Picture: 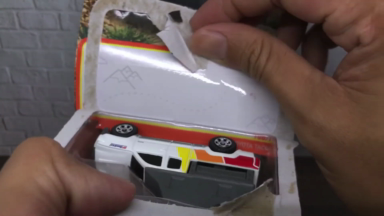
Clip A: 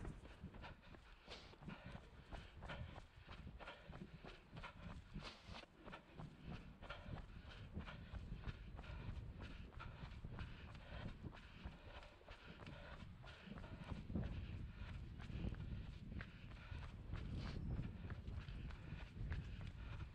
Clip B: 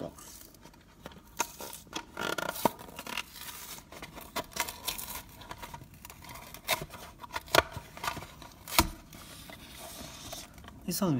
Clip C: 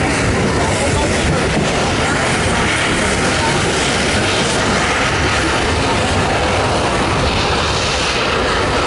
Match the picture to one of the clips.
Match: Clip B